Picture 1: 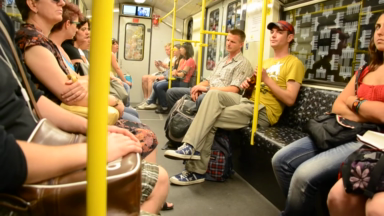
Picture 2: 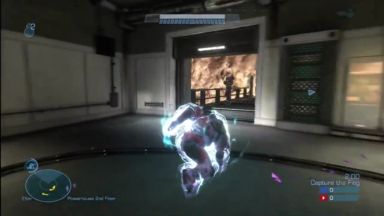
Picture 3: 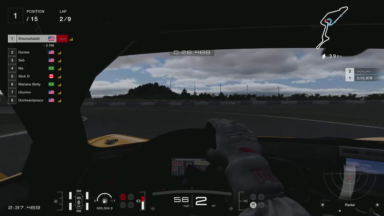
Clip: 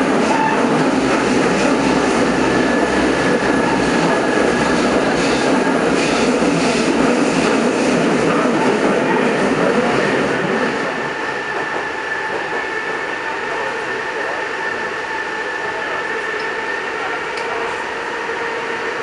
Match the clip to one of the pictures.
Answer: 1